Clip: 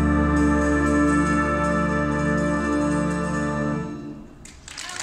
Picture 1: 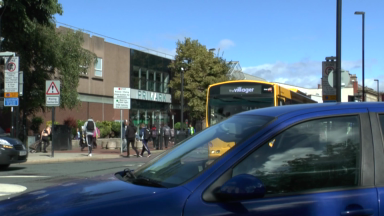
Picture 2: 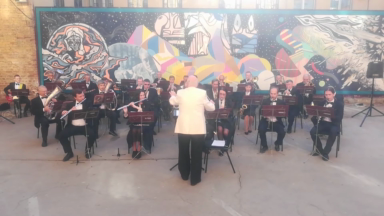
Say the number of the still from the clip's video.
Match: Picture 2